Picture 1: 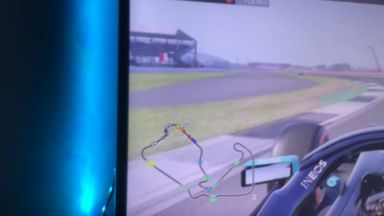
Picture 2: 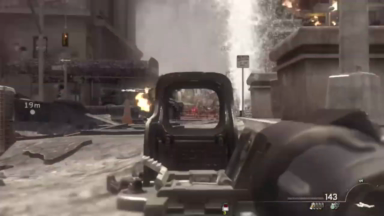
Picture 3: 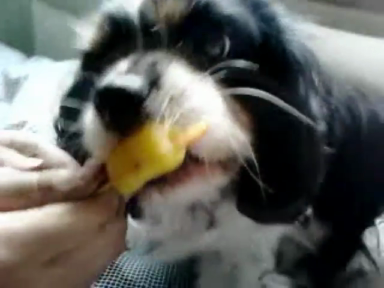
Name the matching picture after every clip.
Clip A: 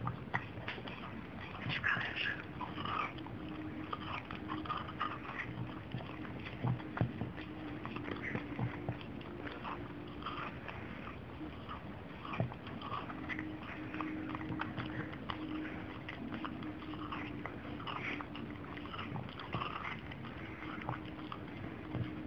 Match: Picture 3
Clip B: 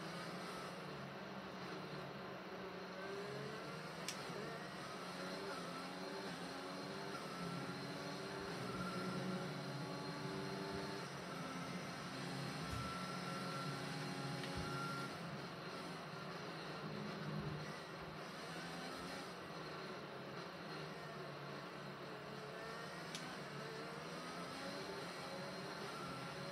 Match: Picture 1